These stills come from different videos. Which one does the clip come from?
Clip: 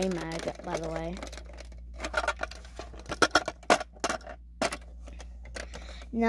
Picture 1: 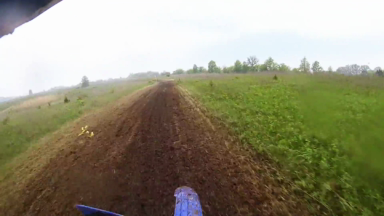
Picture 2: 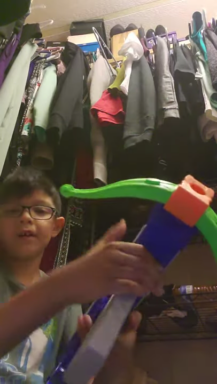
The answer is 2